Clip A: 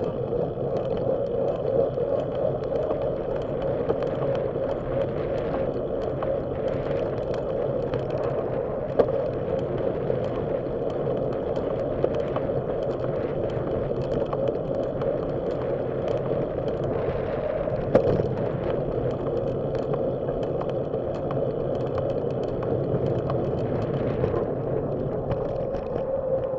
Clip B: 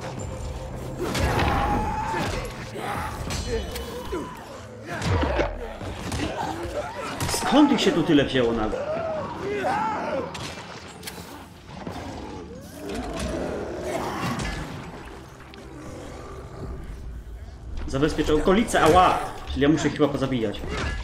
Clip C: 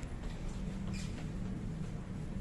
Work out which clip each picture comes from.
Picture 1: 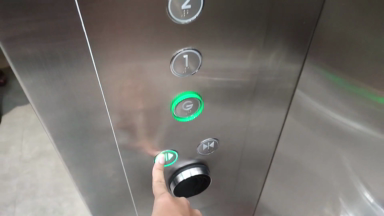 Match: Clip C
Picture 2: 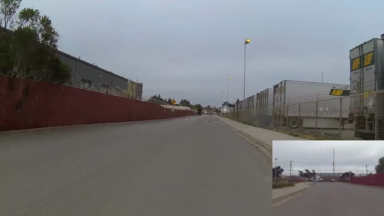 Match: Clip A